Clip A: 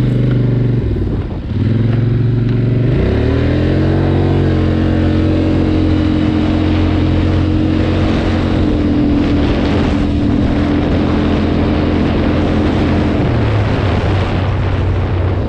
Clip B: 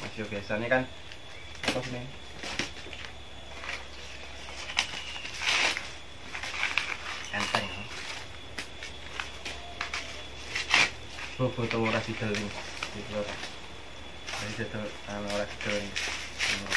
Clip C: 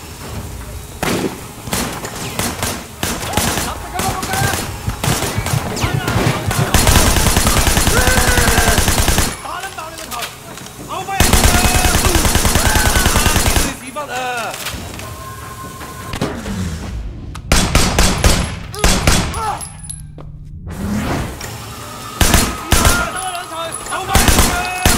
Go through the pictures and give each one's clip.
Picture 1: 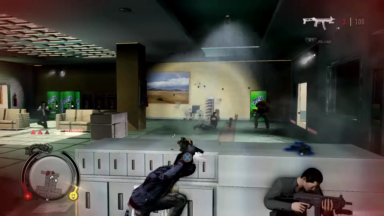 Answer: C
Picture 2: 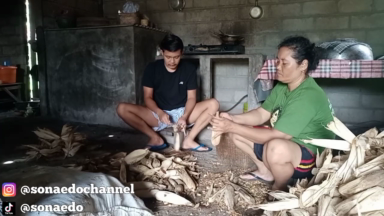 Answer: B